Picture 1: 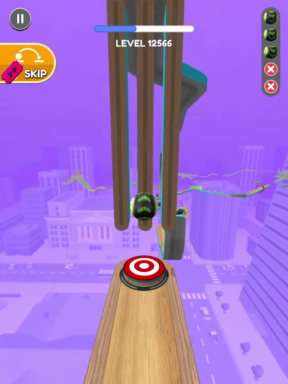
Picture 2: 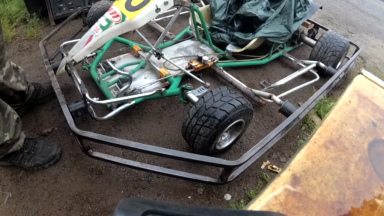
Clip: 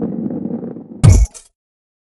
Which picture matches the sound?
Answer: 1